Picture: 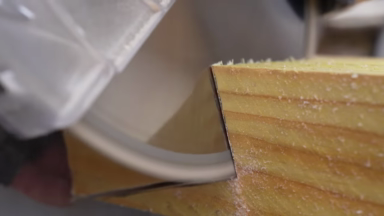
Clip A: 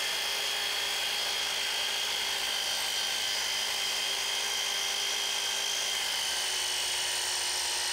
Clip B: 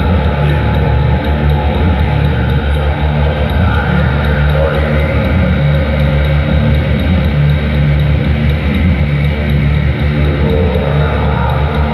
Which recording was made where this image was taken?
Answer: A